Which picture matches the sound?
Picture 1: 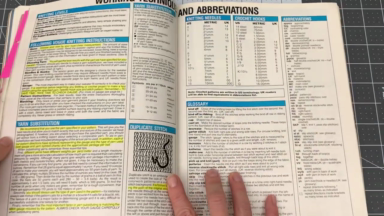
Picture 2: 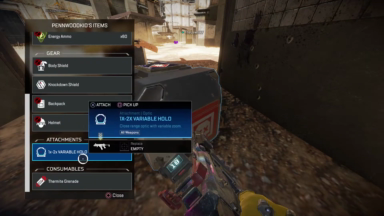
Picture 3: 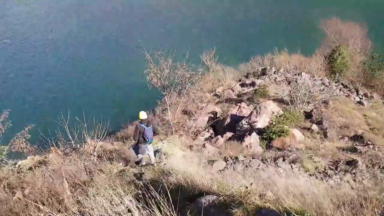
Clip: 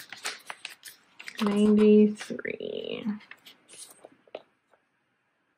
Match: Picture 1